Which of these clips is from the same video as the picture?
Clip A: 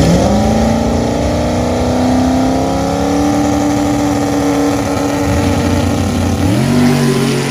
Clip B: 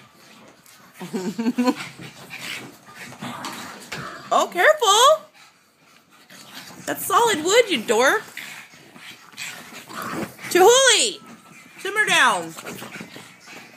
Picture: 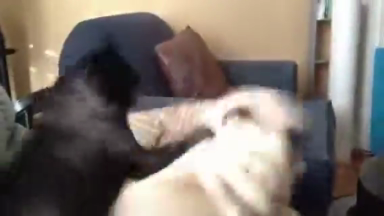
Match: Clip B